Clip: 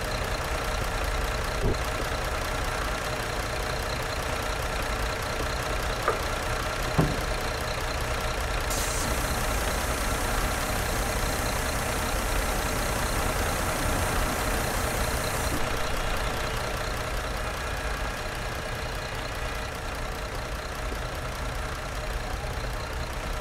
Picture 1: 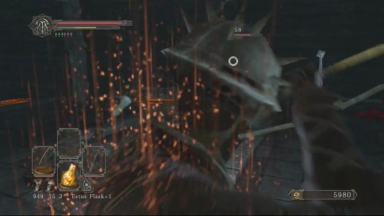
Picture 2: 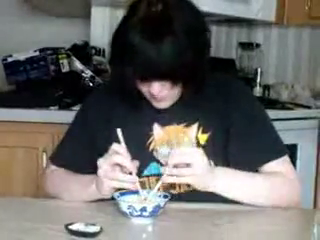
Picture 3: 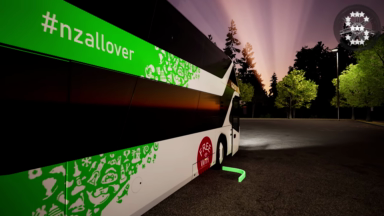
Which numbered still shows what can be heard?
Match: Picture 3